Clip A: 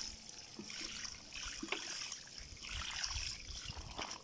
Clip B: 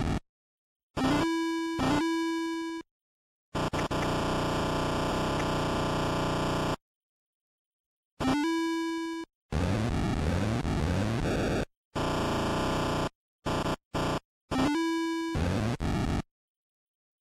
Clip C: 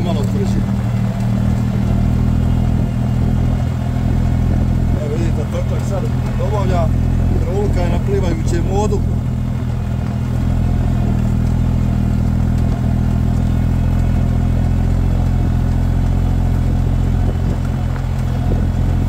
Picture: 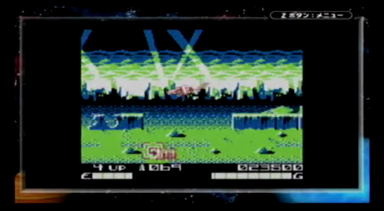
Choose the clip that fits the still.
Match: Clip B